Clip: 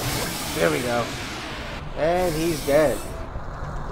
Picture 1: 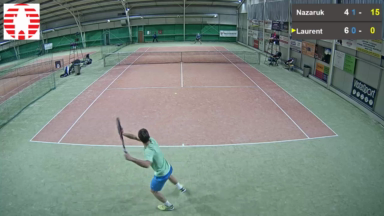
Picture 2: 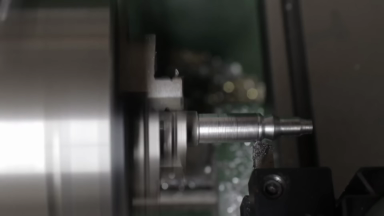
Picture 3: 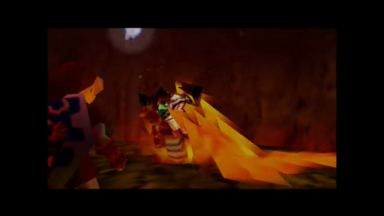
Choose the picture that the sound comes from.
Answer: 3